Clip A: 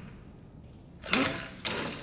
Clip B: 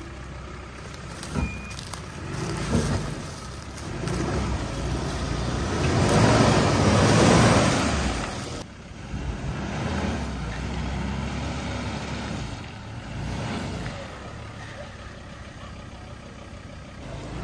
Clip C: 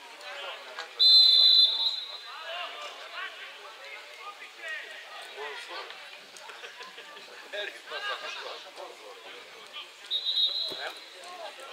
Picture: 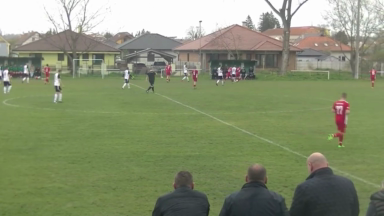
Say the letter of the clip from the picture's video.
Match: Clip C